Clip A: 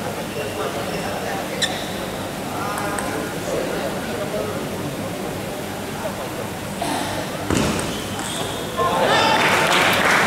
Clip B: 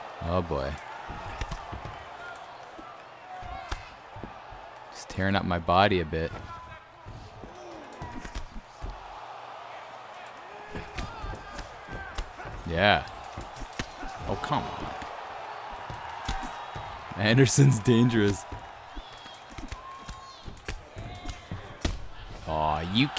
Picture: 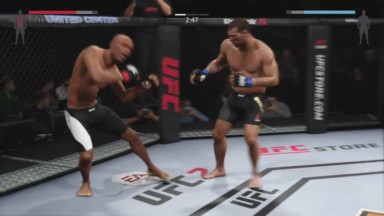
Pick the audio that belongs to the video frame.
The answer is B